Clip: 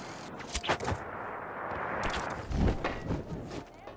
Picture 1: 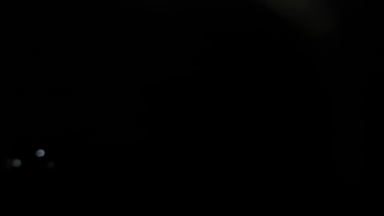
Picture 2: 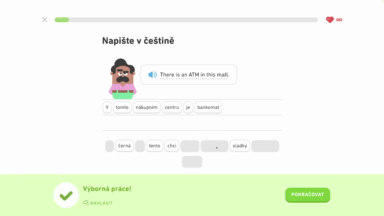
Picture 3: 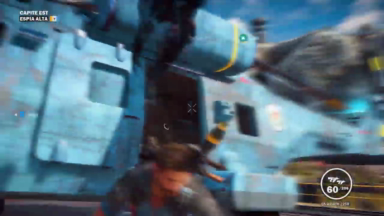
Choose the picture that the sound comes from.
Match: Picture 3